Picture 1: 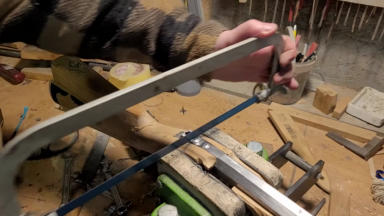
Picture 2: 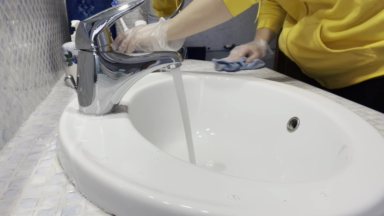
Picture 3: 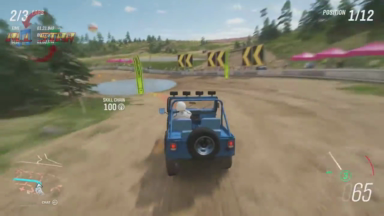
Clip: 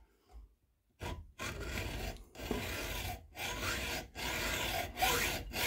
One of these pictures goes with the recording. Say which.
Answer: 1